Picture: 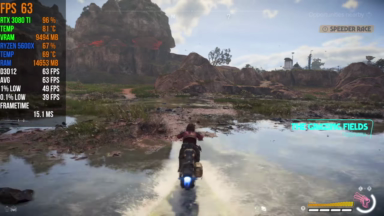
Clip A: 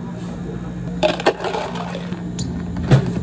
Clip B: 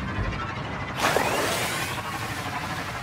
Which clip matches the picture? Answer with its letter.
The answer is B